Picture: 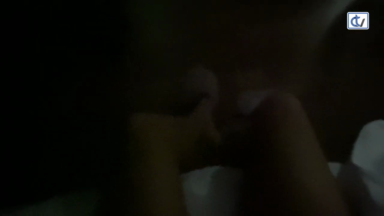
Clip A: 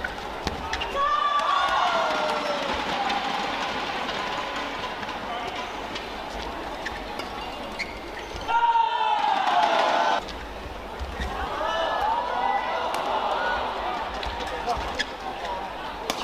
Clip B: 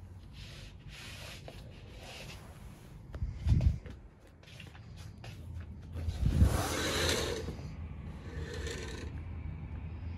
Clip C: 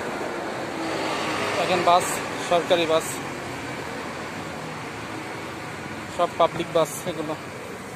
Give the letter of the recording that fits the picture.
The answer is B